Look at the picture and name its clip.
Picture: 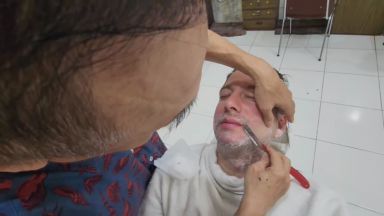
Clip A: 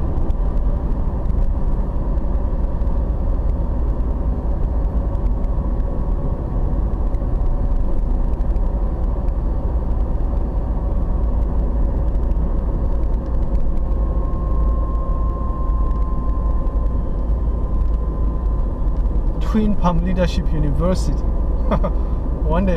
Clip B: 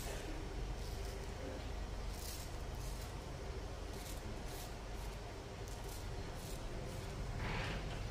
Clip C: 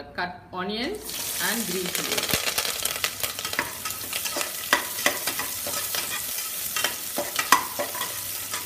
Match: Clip B